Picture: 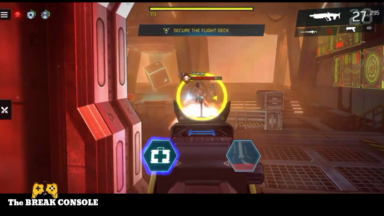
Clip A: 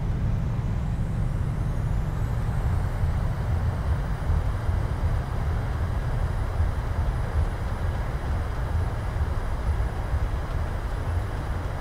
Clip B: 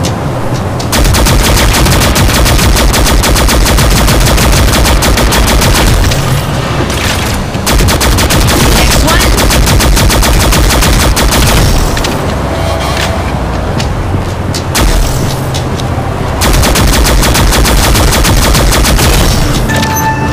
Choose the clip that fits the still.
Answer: B